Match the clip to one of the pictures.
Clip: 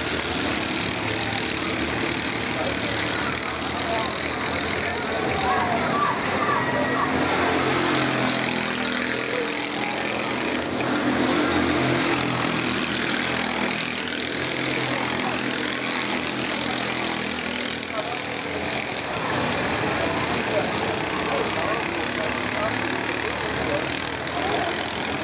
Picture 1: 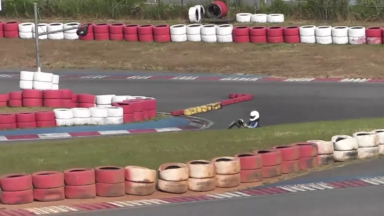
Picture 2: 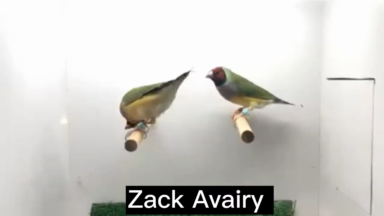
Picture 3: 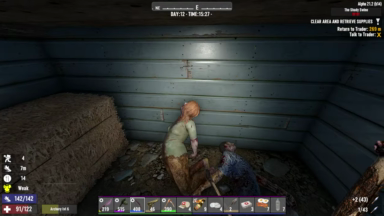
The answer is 1